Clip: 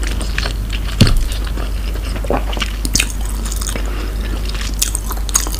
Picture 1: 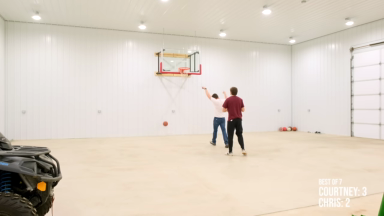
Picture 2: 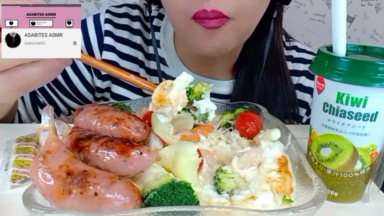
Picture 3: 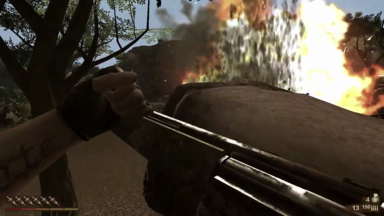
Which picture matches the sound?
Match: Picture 2